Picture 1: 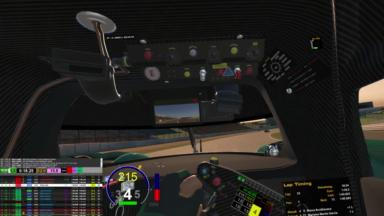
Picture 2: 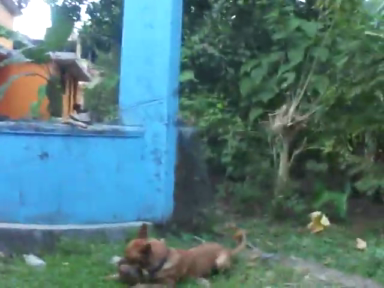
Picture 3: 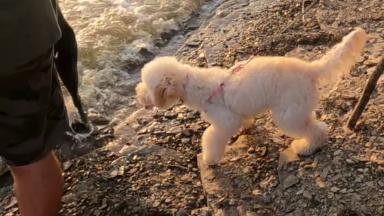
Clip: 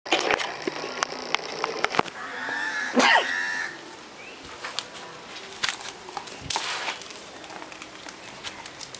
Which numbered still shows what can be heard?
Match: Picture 2